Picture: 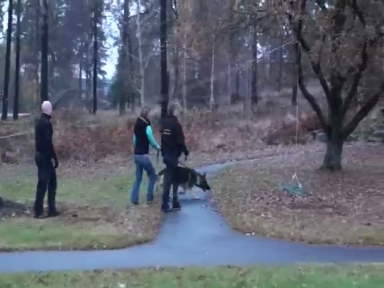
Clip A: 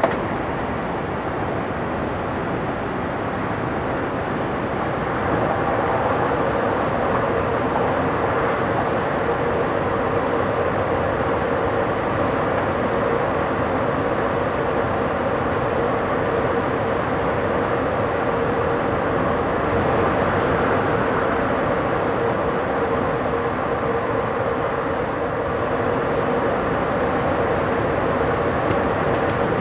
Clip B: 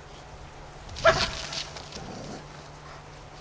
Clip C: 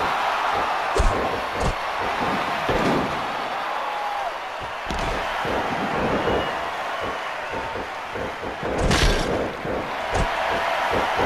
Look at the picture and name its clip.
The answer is B